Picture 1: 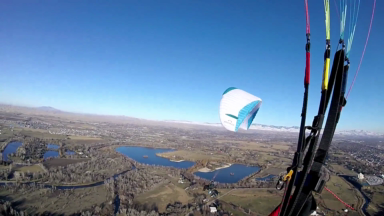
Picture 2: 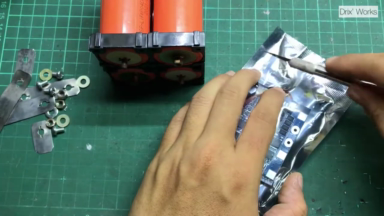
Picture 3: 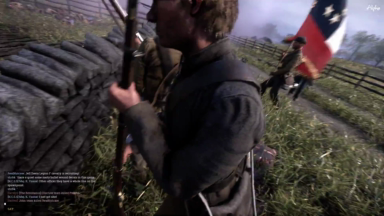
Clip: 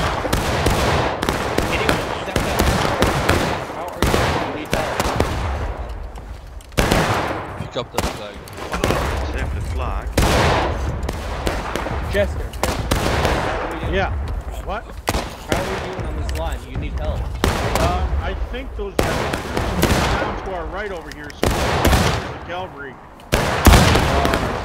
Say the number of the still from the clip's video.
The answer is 3